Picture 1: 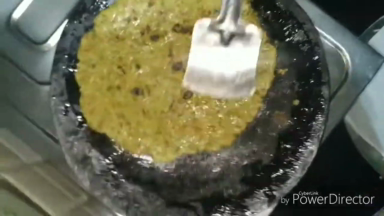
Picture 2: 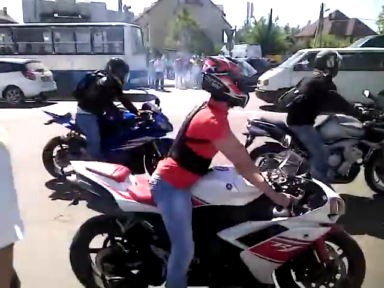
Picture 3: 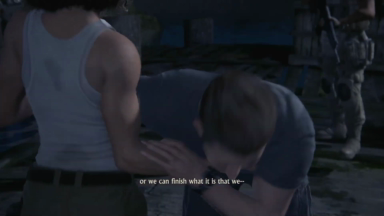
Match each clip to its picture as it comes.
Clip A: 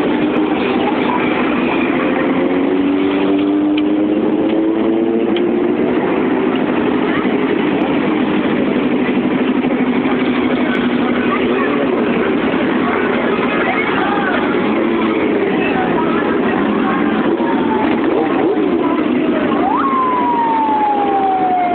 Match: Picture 2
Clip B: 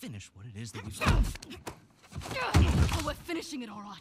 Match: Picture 3